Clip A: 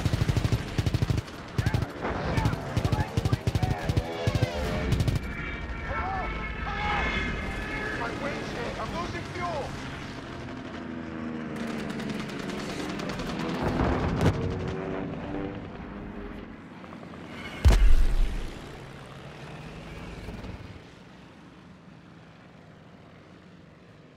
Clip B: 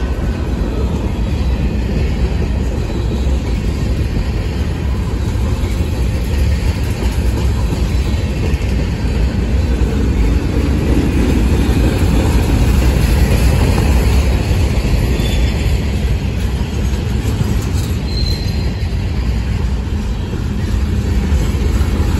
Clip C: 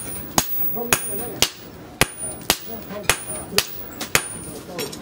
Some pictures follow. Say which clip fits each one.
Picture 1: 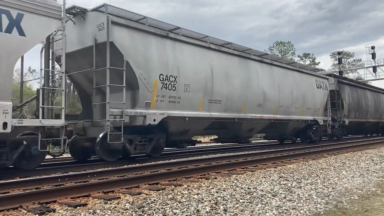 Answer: B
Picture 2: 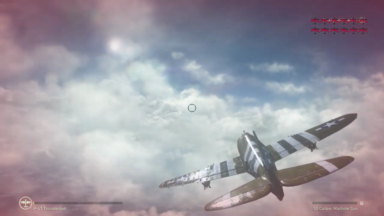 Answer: A